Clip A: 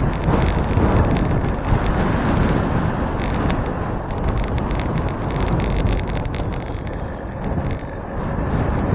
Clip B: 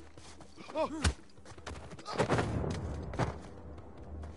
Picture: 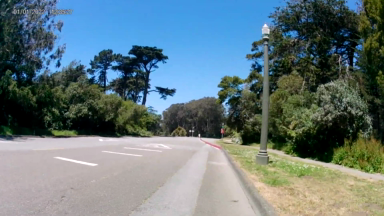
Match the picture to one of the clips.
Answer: A